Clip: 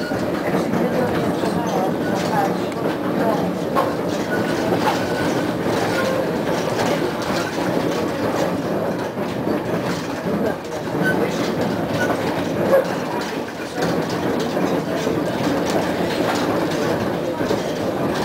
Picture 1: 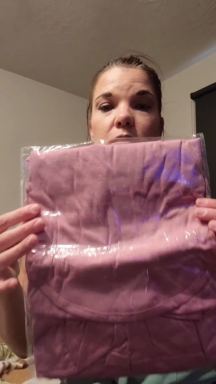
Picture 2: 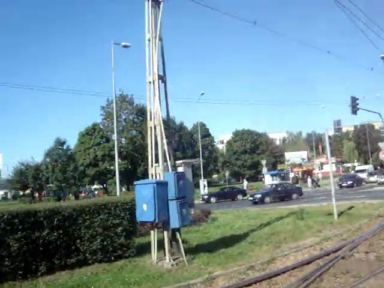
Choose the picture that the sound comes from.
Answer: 2